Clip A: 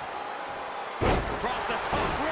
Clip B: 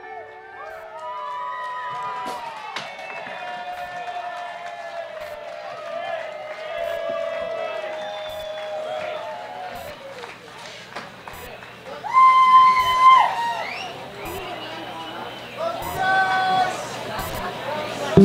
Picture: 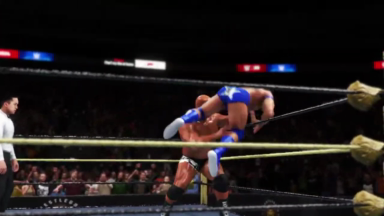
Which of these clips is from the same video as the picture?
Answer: A